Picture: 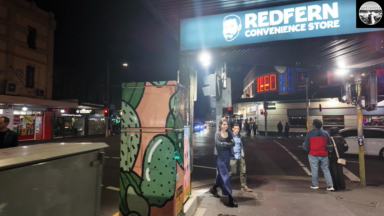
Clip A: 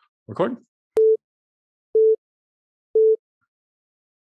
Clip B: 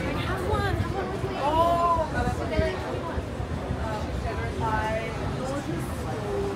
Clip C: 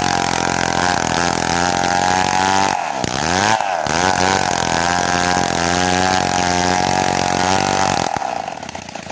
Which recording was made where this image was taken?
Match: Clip B